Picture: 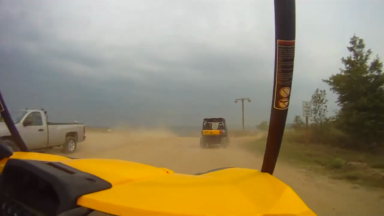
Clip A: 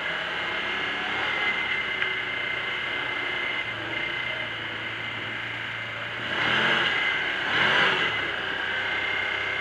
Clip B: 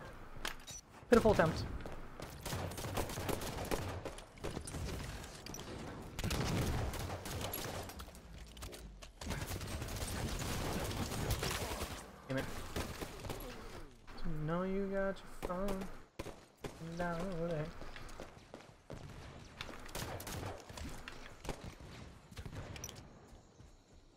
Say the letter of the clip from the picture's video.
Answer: A